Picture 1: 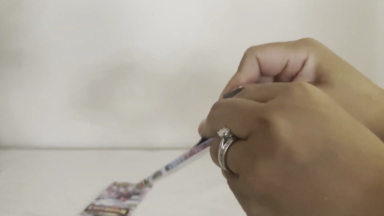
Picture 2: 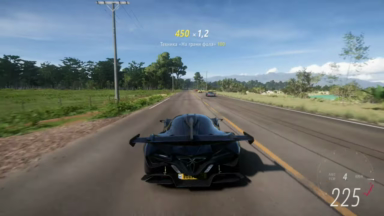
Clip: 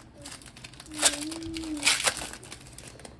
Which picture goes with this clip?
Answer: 1